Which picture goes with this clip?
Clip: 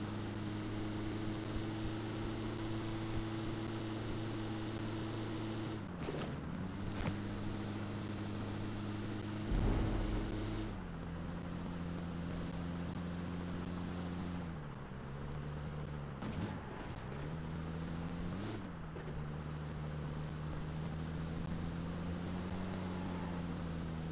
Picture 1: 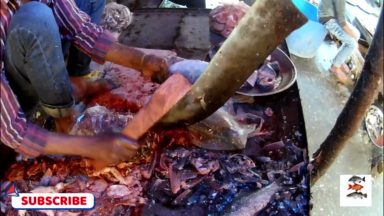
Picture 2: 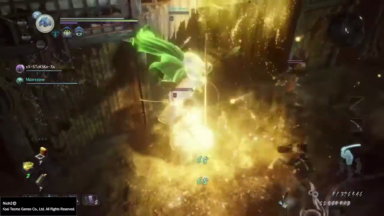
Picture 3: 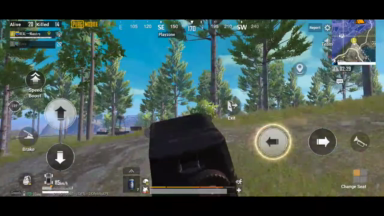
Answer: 3